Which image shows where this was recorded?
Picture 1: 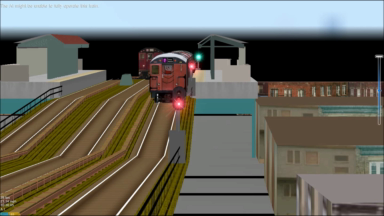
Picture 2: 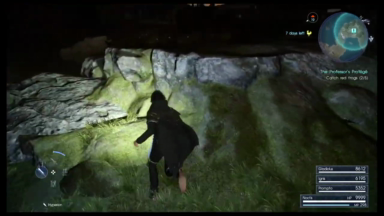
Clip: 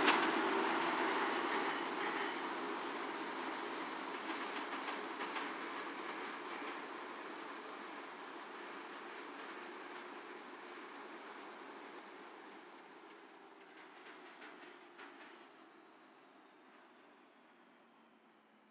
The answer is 1